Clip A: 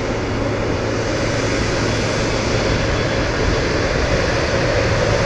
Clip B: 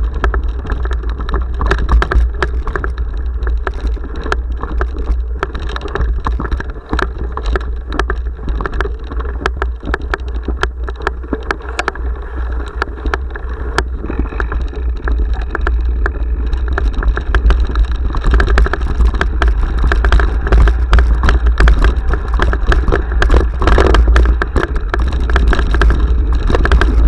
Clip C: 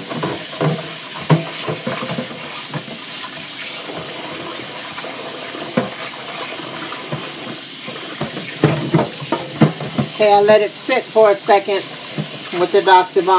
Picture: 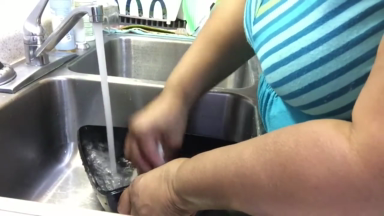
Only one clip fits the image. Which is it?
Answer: C